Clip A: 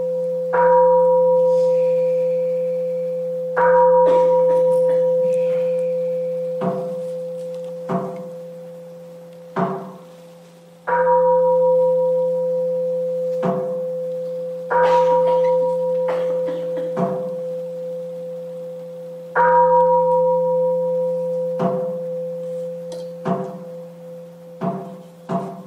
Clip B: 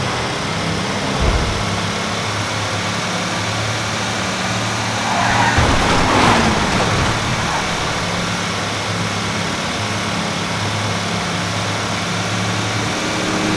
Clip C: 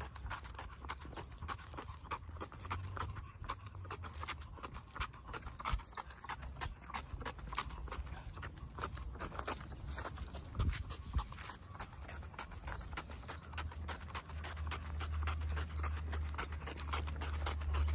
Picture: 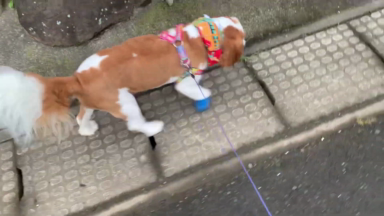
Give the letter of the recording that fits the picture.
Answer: C